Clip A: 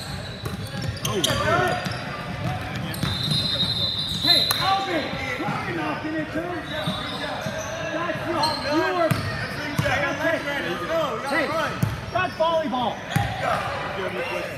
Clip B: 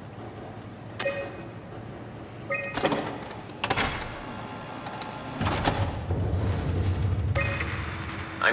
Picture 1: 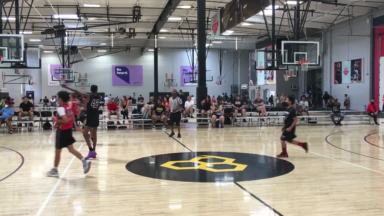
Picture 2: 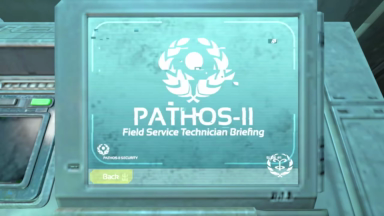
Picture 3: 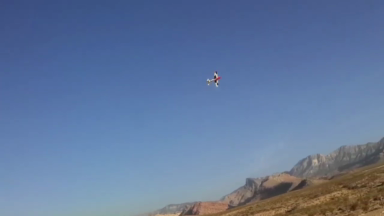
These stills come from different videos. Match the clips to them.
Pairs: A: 1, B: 2